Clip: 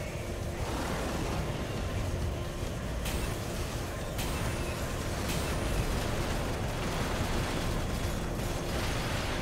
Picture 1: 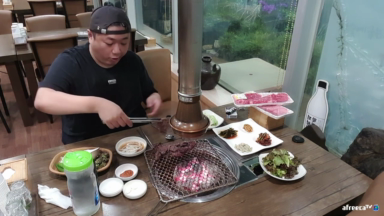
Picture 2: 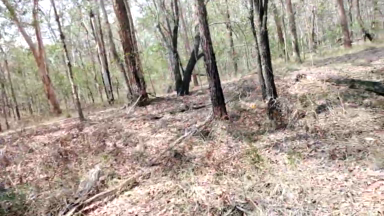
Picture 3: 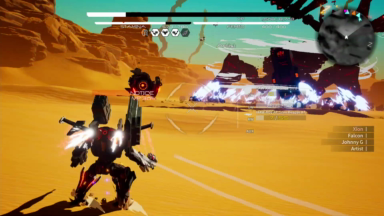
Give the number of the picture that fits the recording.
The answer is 3